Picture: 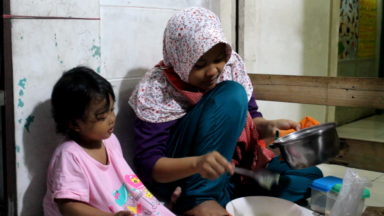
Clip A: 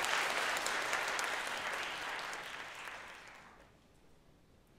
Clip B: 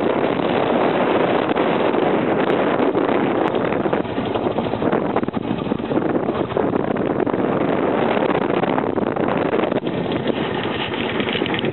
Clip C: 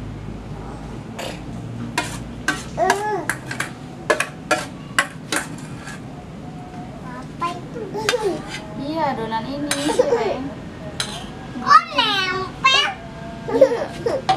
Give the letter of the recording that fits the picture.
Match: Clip C